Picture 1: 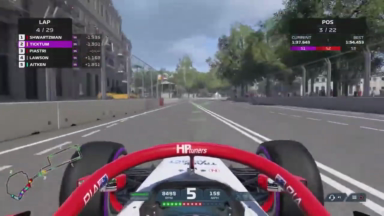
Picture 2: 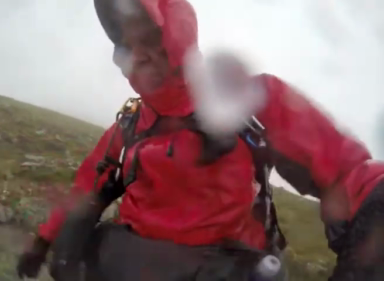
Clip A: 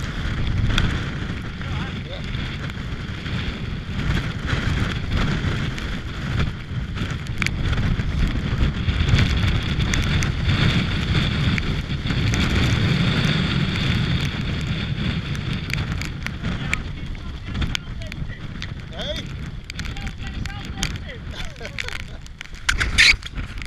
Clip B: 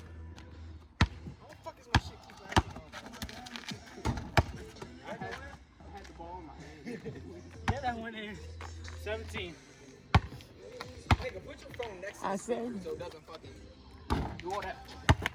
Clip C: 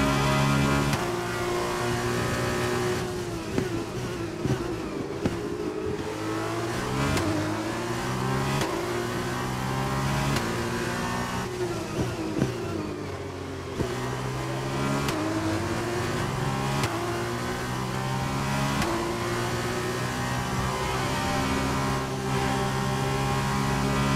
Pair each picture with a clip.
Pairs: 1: C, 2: A